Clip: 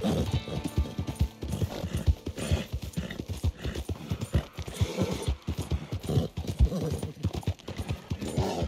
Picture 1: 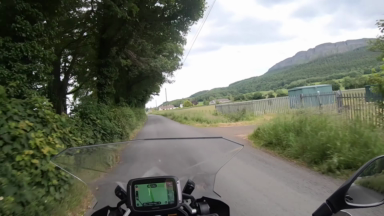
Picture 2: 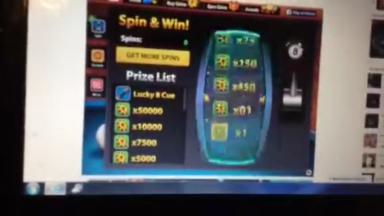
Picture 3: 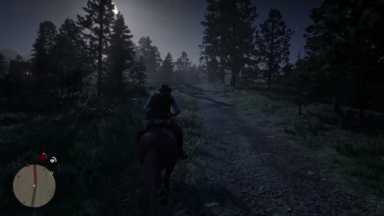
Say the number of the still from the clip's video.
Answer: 3